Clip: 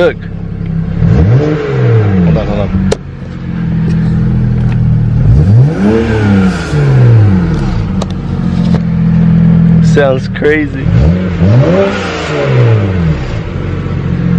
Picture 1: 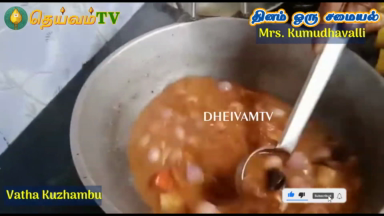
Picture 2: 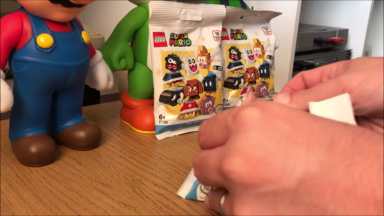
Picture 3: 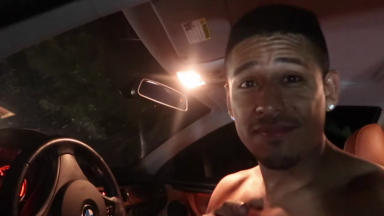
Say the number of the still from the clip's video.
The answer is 3